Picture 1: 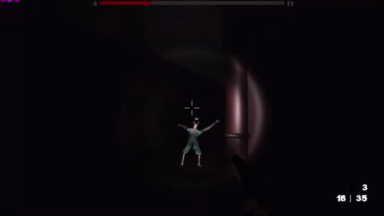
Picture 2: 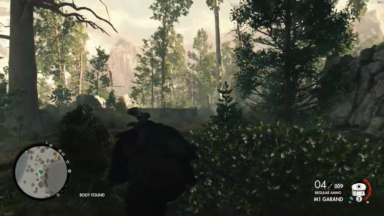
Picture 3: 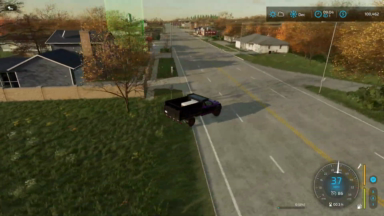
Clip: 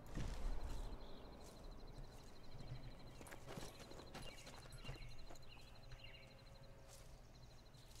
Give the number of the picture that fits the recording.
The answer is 2